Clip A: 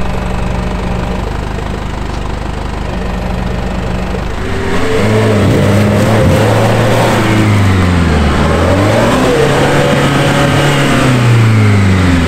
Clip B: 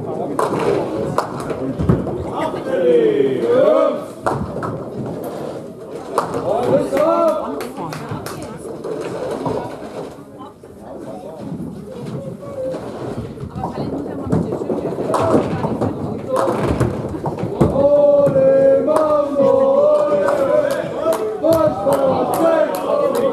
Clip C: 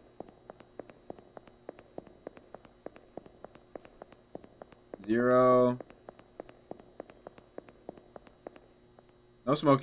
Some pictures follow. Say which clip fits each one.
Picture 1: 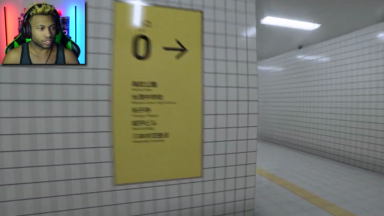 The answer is C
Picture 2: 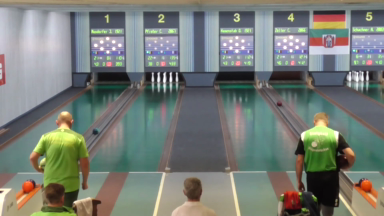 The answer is B